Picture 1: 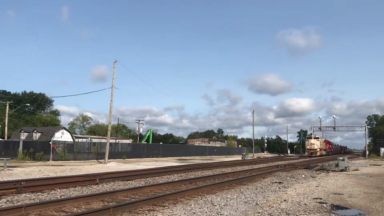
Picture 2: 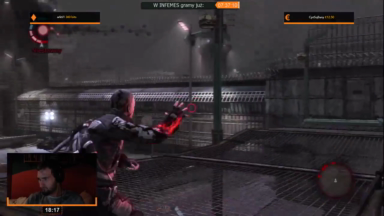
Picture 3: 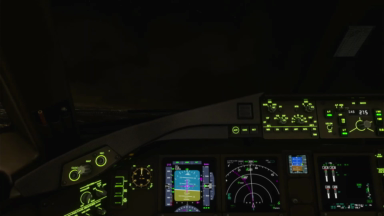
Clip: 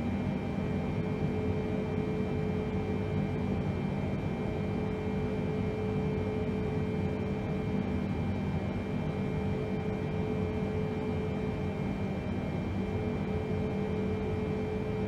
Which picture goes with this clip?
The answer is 3